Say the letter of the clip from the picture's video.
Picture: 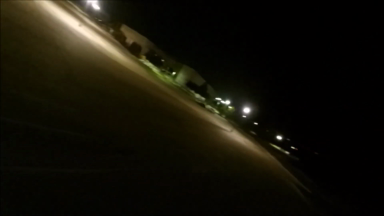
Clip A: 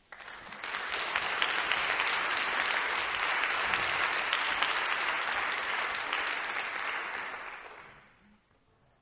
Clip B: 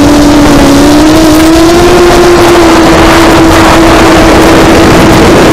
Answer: B